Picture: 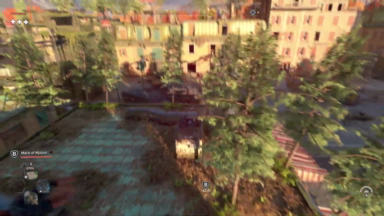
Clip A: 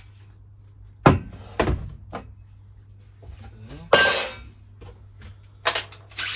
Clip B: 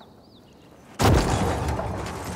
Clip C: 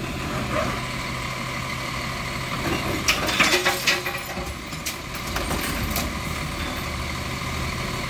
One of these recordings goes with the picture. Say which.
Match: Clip B